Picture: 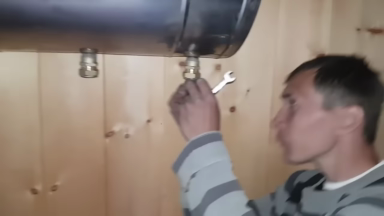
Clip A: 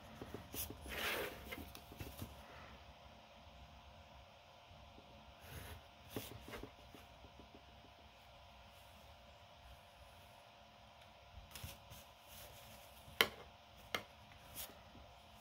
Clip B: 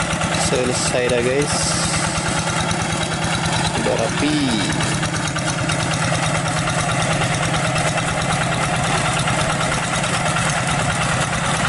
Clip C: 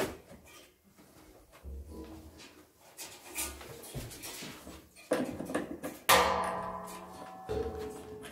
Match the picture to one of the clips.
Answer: C